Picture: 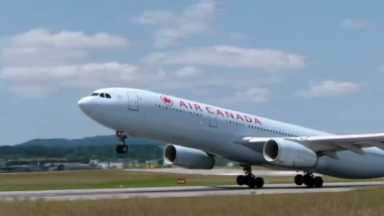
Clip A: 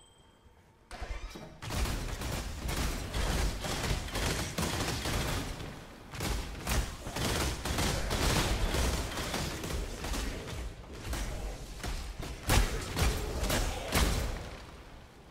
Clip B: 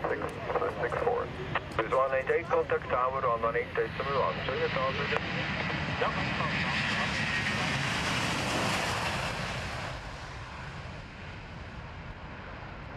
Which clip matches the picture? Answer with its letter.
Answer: B